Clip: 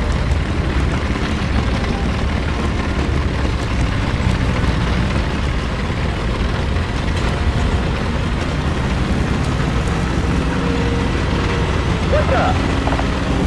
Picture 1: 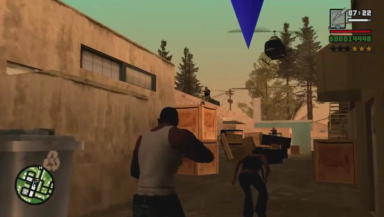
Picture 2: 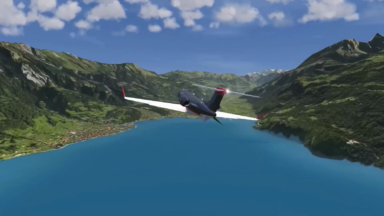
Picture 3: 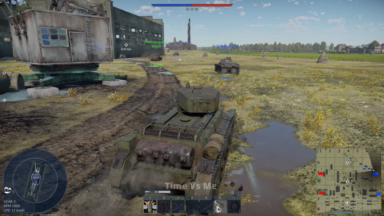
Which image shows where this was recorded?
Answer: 3